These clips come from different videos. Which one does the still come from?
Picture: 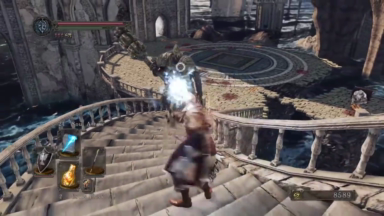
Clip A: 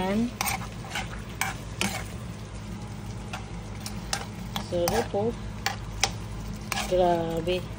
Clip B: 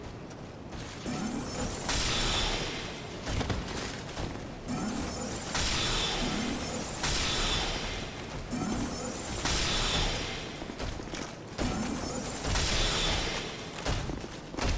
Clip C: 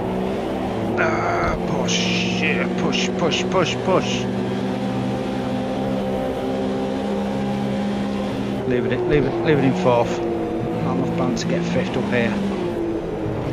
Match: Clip B